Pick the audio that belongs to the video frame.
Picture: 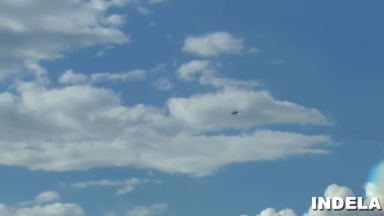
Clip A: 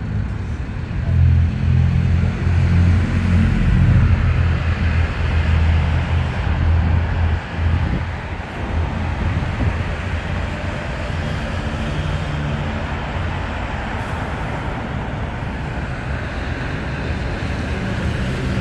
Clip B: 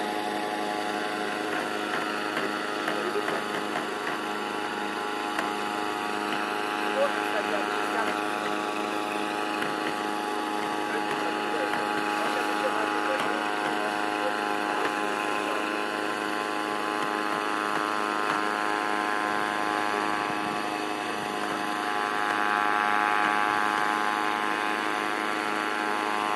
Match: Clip B